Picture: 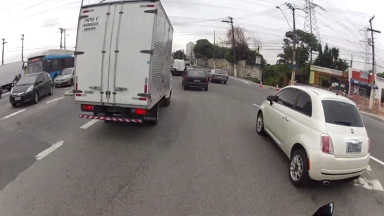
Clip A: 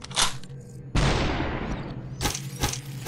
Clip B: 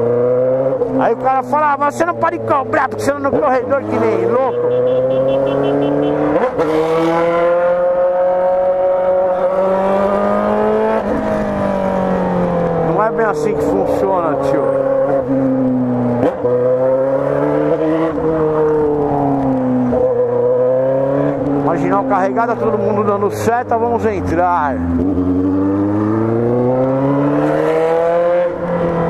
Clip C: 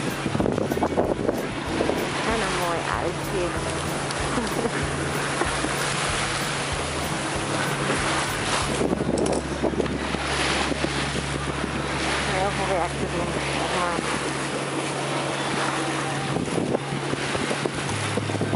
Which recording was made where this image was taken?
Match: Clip B